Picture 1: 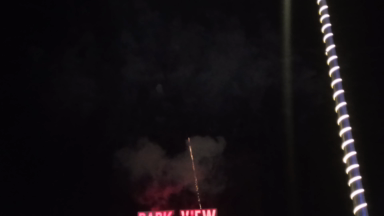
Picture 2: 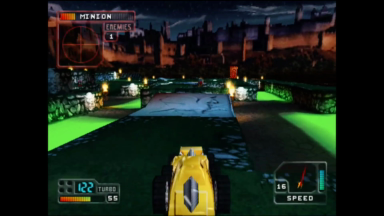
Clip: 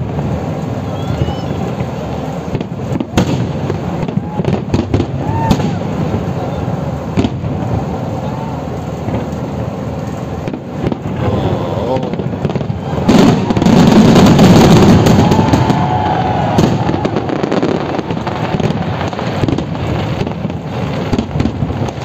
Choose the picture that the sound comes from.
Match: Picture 1